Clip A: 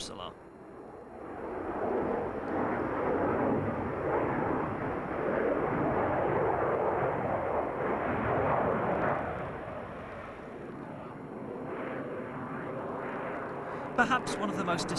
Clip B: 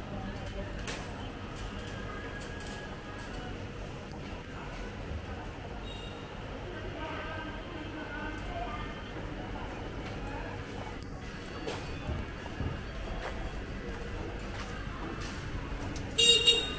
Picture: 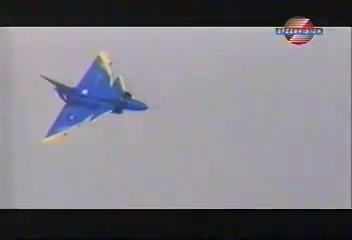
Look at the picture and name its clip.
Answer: A